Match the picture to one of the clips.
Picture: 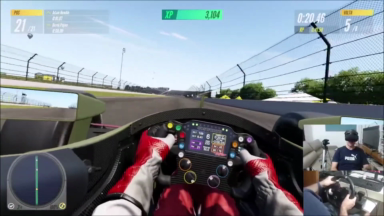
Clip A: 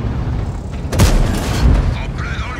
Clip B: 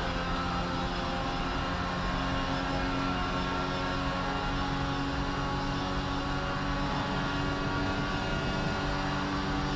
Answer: B